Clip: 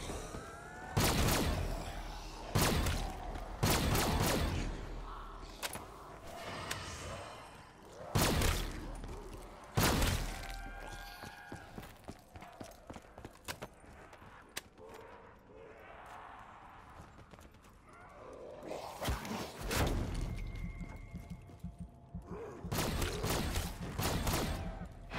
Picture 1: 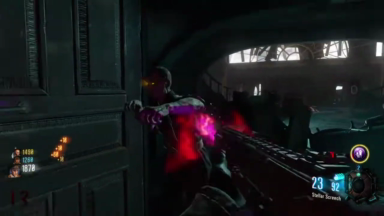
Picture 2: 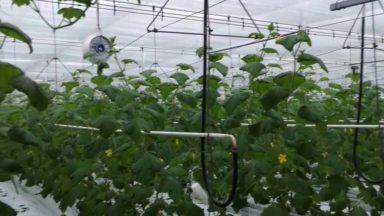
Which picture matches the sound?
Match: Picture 1